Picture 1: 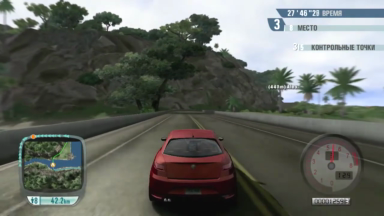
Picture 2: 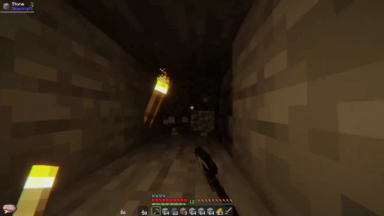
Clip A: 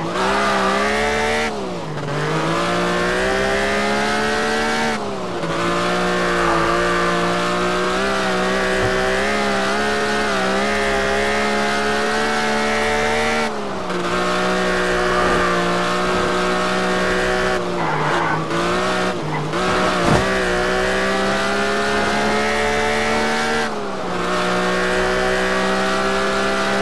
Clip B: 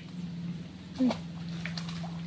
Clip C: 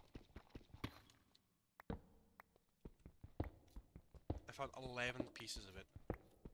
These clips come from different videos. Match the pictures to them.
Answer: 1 A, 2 C